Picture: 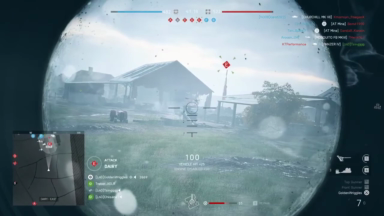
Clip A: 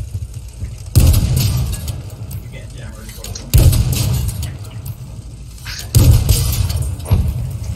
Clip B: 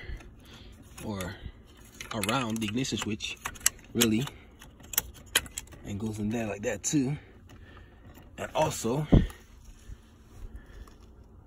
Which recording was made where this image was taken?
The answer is A